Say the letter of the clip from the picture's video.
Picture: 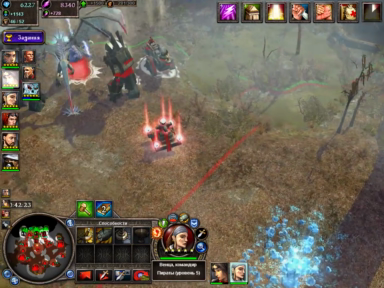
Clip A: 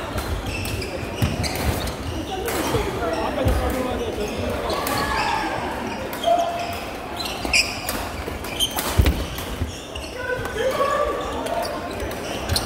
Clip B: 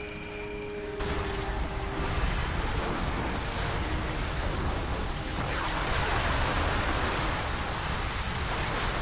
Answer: B